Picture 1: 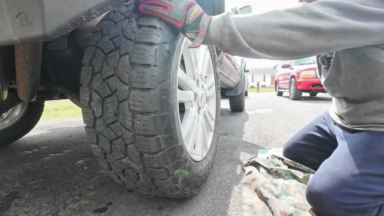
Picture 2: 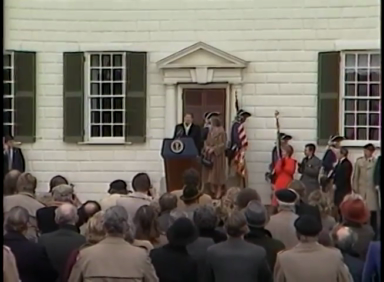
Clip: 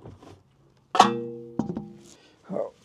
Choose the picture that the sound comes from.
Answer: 1